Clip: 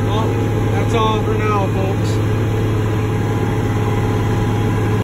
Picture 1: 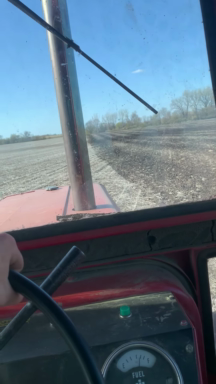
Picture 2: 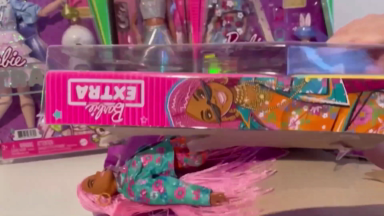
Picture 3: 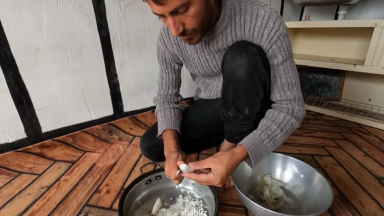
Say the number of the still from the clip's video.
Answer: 1